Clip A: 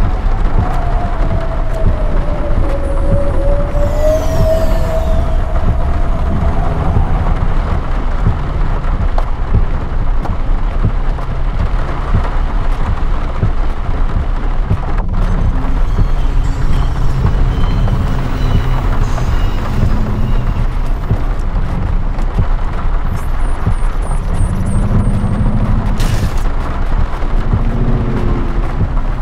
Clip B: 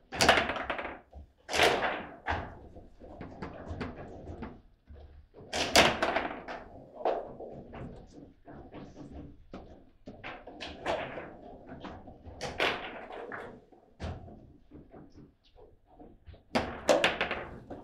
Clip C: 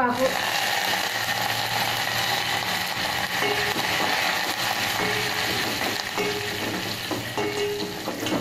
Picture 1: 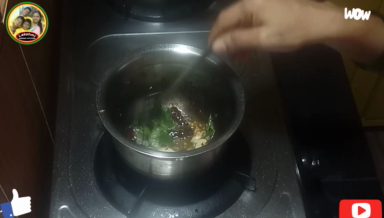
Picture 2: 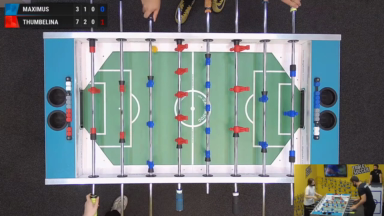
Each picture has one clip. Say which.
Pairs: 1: C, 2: B